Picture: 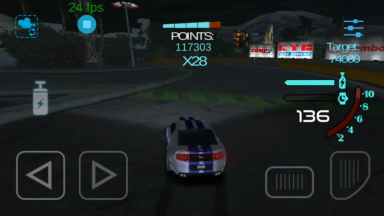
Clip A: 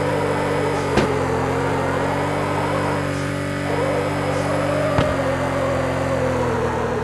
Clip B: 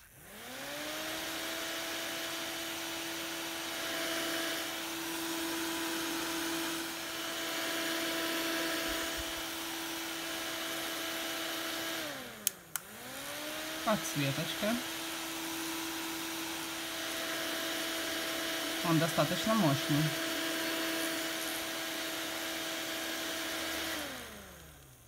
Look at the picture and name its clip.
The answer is A